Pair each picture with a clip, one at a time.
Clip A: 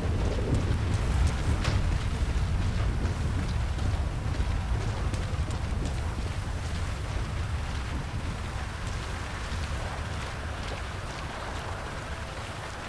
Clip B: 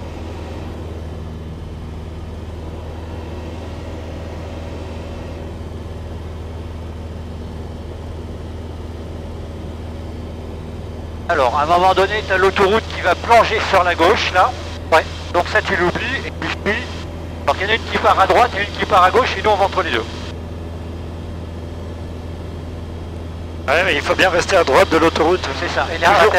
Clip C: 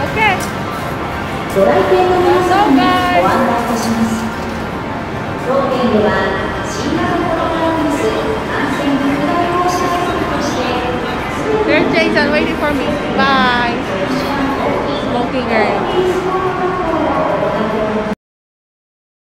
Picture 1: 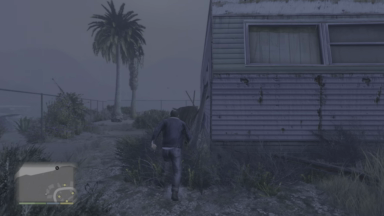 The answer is A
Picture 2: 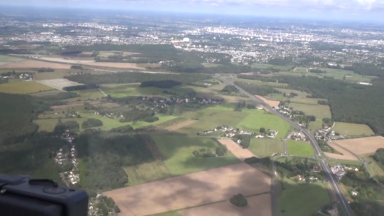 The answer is B